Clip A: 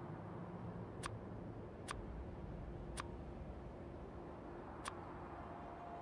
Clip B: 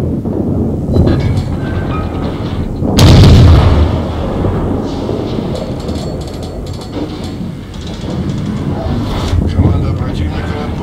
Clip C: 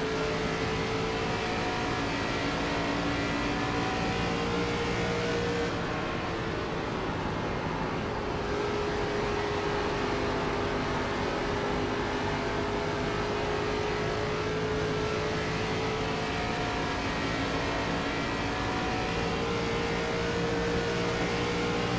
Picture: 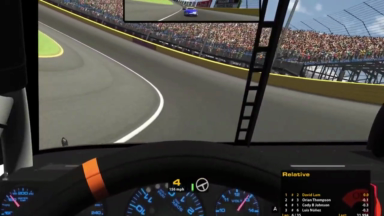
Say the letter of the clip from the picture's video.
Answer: C